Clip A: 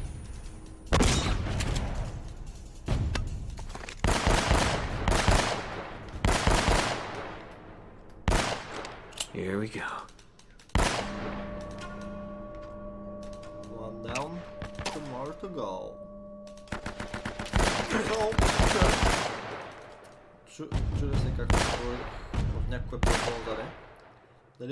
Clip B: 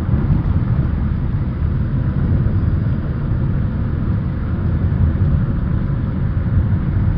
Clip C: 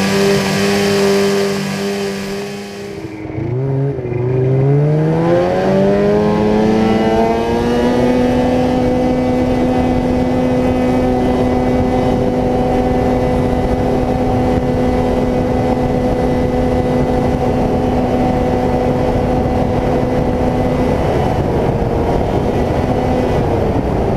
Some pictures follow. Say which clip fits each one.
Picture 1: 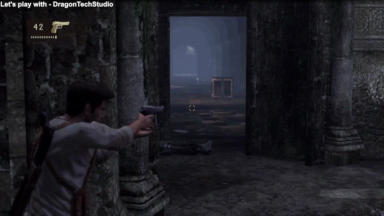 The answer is A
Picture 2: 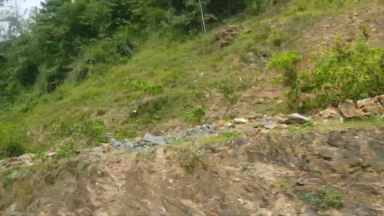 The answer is B